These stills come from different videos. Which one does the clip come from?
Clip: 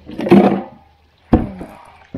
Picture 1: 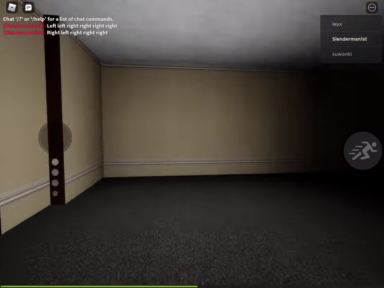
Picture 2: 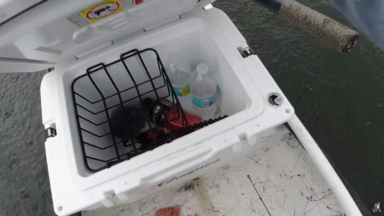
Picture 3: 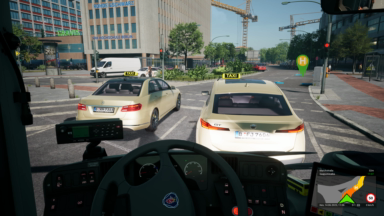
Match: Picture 2